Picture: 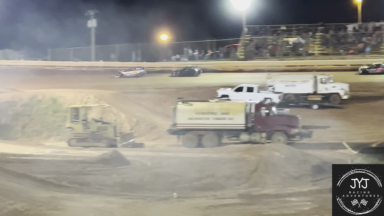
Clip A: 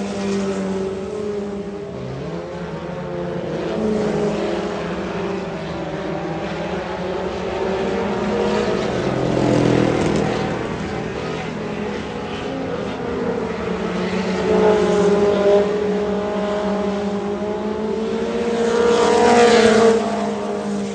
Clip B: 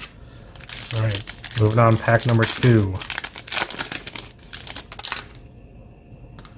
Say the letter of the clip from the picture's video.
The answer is A